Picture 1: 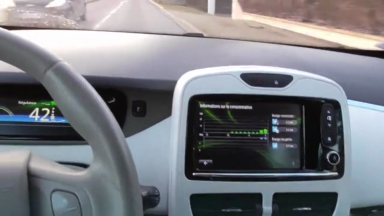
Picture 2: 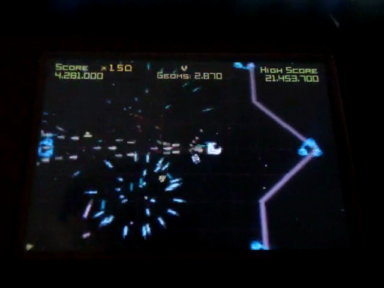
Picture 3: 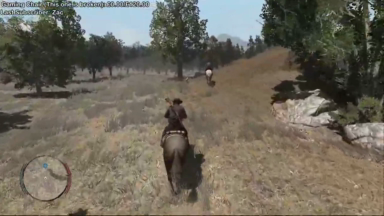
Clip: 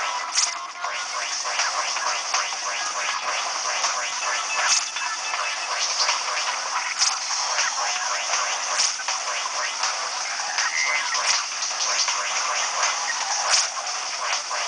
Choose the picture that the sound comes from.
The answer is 2